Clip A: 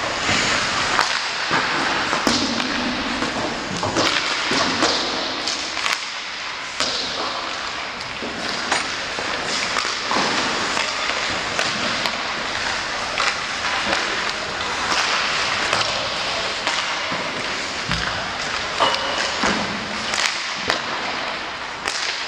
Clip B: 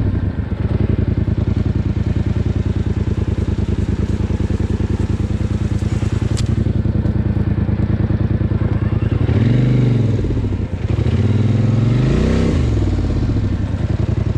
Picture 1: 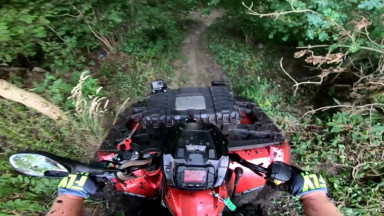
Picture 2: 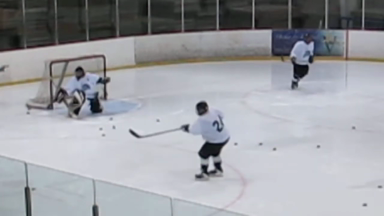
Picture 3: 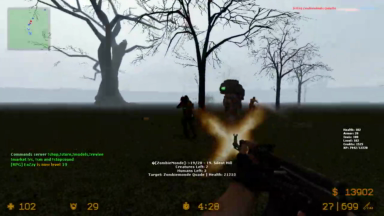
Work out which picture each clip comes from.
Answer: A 2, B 1